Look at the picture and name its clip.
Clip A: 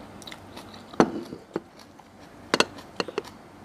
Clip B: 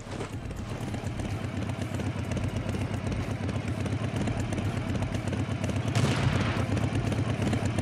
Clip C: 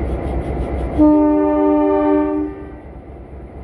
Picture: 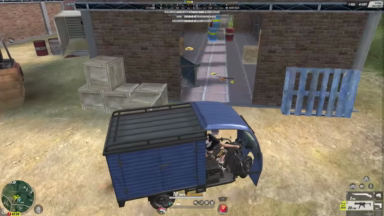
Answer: B